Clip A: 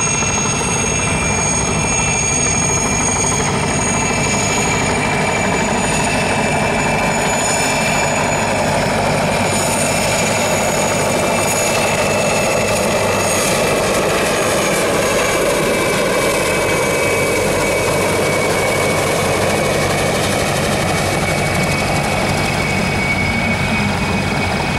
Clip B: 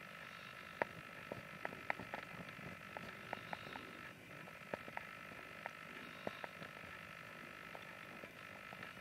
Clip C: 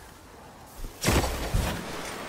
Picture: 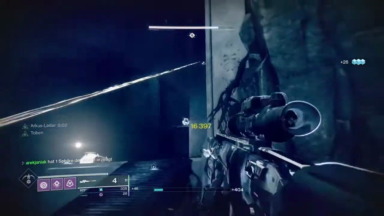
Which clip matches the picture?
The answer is C